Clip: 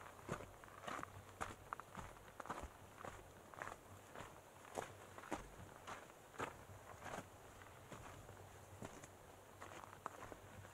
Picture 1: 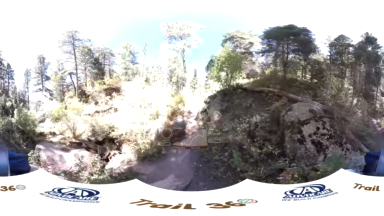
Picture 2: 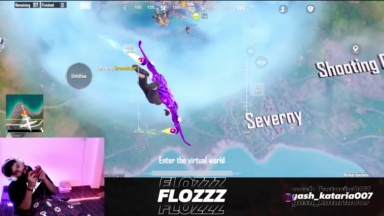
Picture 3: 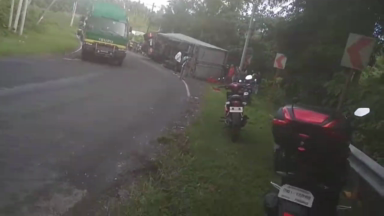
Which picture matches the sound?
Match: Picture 1